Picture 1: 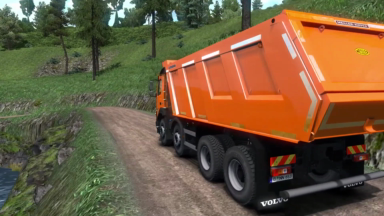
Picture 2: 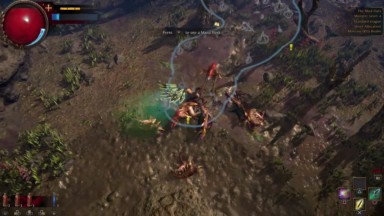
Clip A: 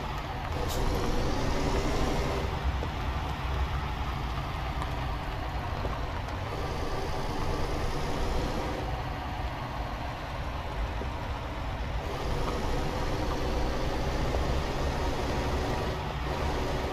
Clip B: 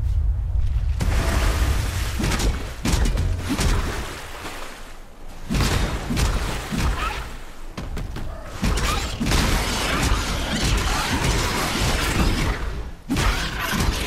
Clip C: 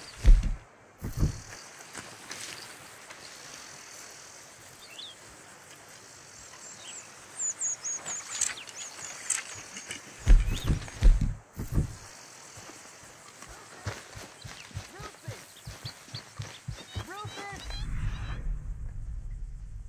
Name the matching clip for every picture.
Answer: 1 A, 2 B